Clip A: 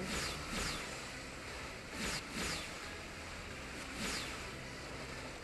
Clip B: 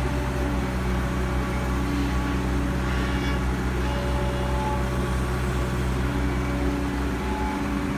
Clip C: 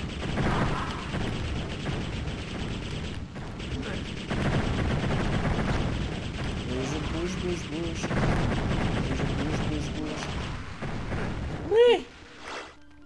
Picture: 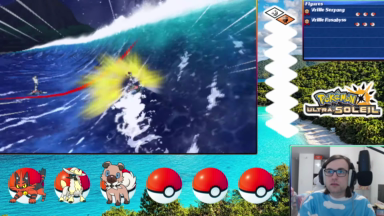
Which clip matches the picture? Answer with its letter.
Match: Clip A